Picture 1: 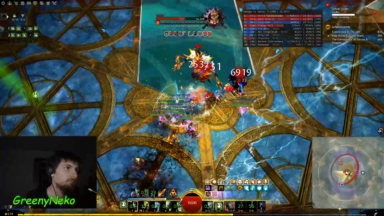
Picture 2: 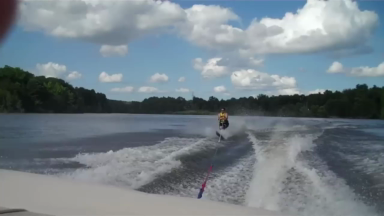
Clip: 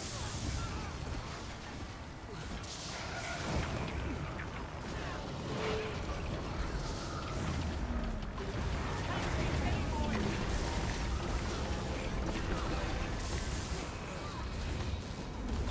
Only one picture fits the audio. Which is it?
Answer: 1